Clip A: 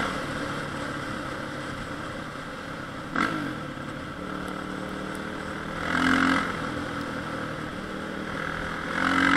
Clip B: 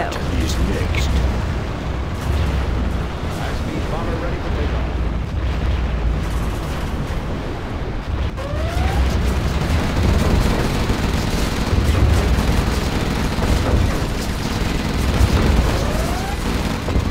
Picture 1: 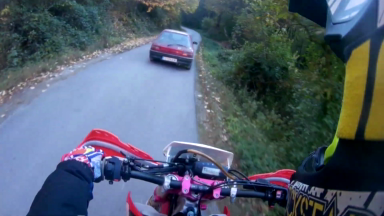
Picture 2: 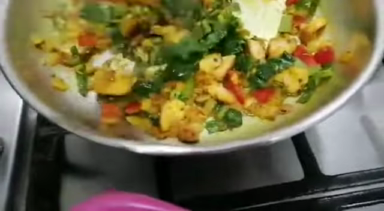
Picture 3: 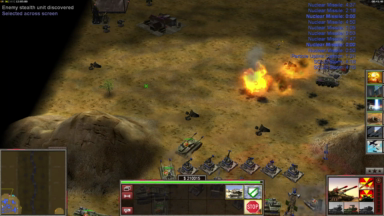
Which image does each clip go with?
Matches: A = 1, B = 3